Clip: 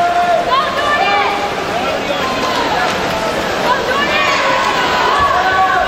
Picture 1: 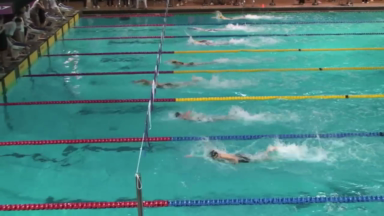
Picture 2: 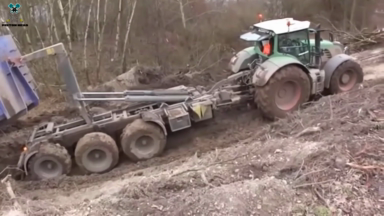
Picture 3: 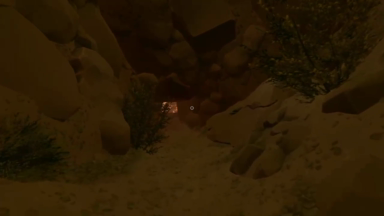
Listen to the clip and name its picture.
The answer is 1